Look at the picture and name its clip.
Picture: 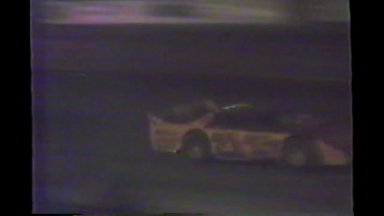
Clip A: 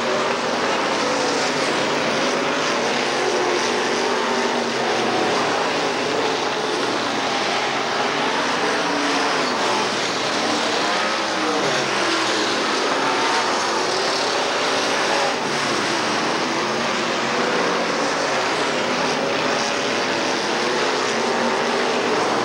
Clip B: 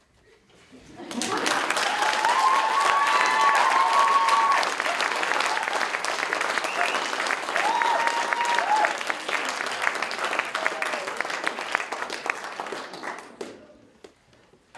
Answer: A